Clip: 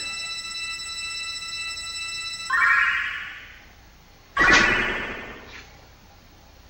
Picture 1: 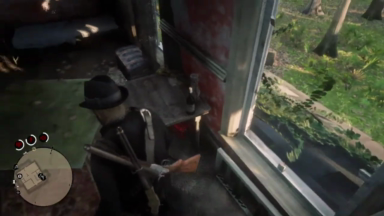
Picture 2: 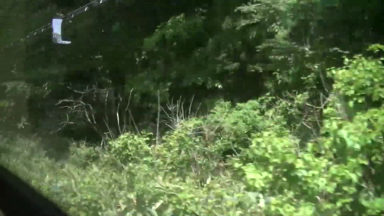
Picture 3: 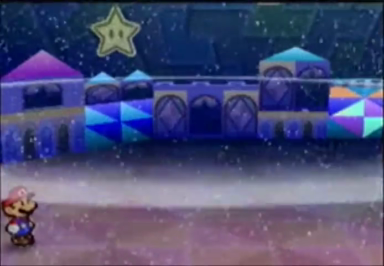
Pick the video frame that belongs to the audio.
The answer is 3